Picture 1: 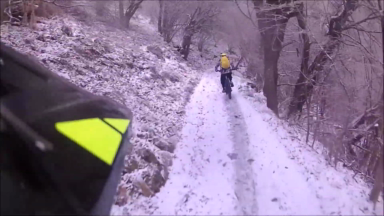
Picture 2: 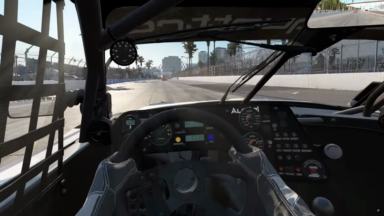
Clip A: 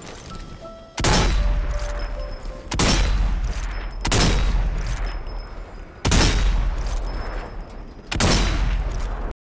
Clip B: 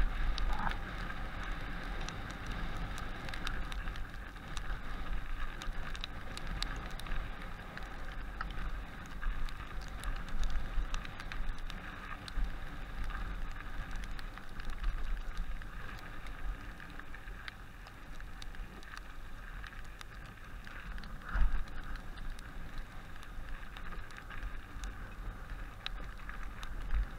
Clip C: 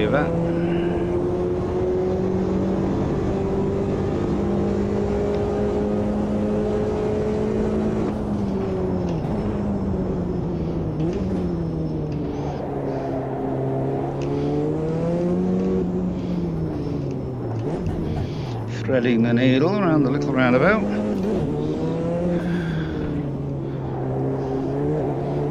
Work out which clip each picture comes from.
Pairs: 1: B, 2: C